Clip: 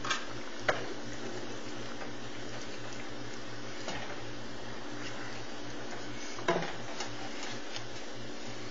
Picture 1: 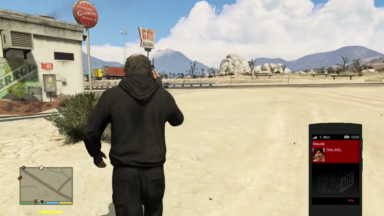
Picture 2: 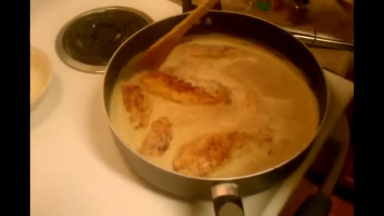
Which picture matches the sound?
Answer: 2